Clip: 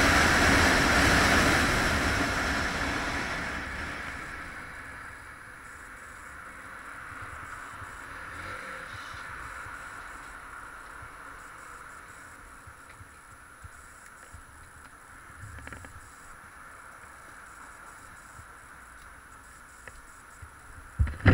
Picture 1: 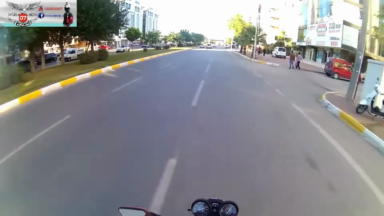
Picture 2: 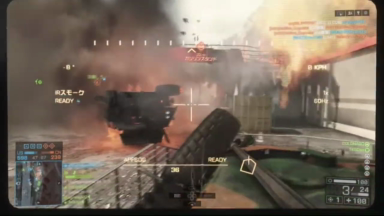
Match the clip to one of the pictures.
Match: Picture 1